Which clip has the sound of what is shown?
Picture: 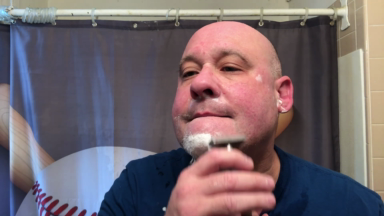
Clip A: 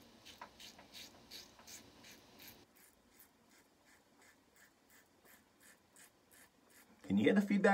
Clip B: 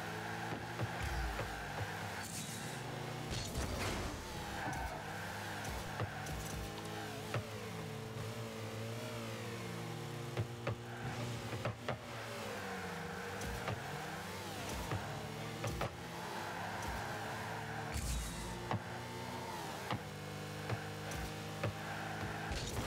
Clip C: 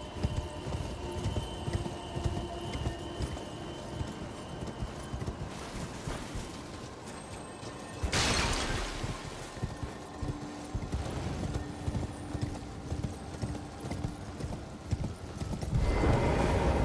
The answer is A